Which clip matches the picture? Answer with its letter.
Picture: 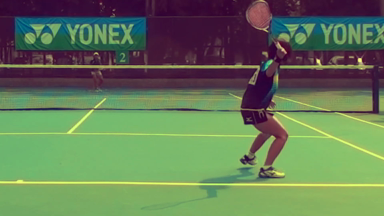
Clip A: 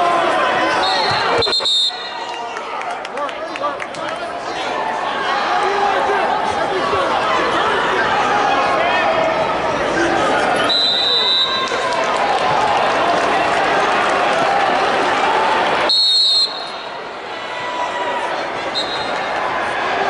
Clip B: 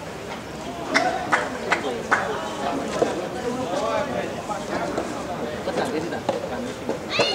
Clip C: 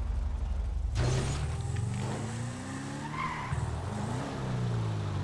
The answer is B